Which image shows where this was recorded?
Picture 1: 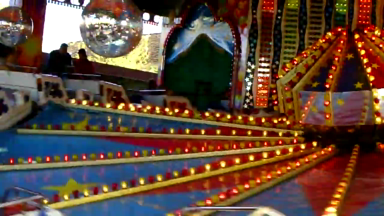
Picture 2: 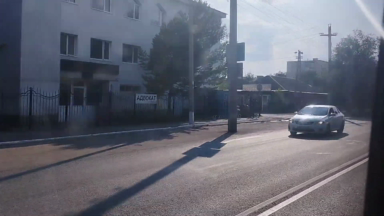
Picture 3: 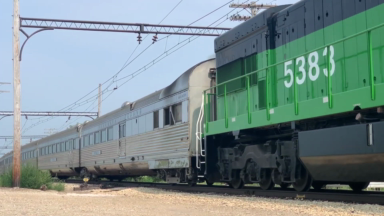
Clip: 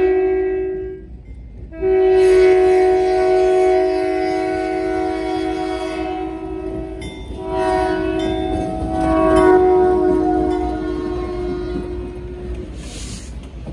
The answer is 3